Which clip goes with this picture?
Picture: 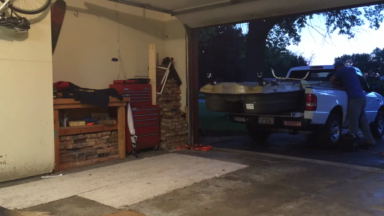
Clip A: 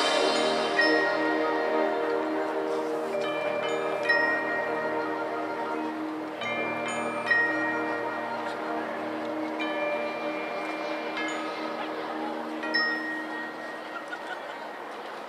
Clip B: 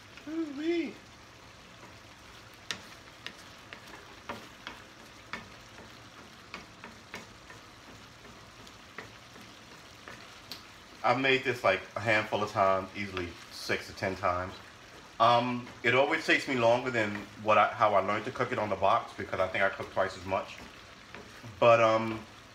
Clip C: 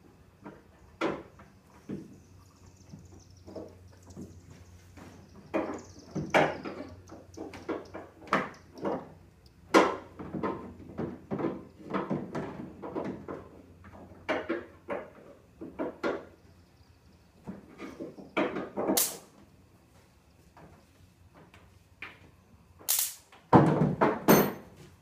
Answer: C